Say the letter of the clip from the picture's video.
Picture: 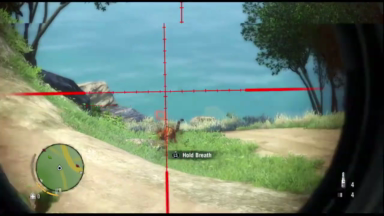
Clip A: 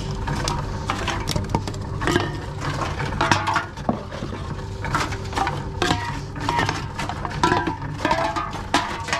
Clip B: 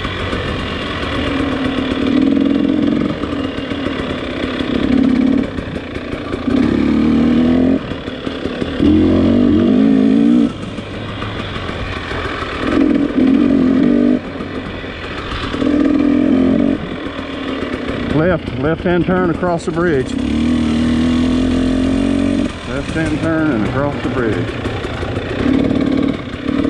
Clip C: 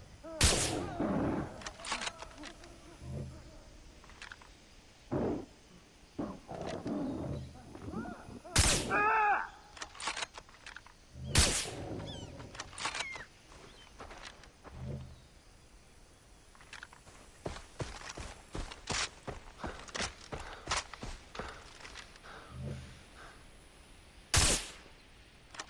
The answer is C